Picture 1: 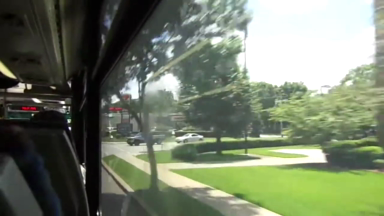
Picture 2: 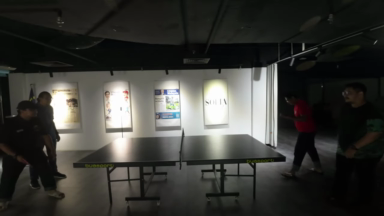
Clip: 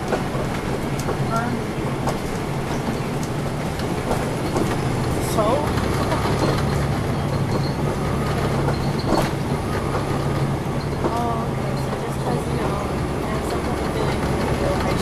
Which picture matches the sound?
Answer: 1